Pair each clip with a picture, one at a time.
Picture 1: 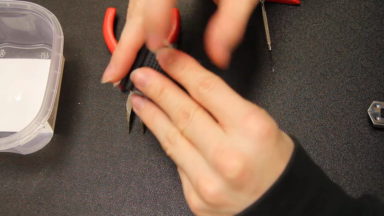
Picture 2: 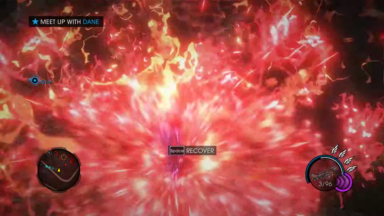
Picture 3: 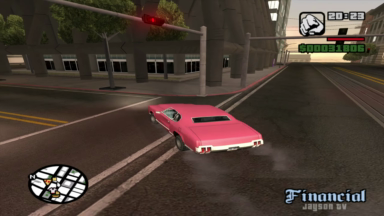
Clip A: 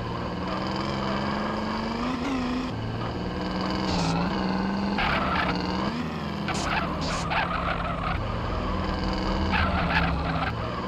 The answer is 3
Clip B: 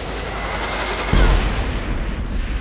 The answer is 2